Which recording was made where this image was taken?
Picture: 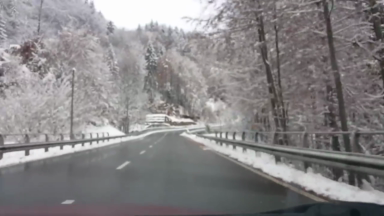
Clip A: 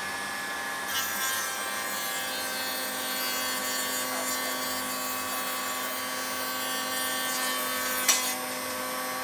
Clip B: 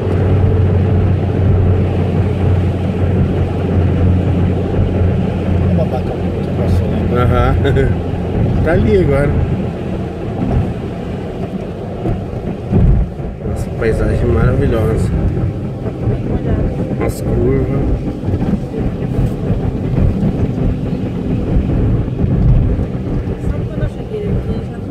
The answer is B